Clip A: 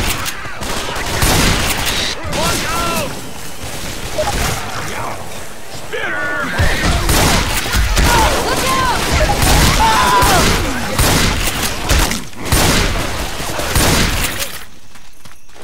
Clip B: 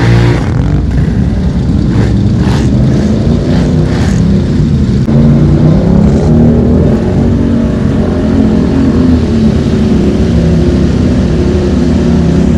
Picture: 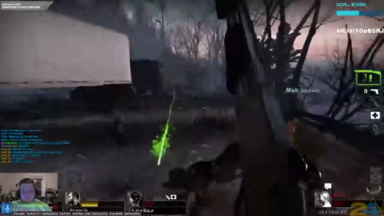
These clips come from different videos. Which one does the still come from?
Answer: A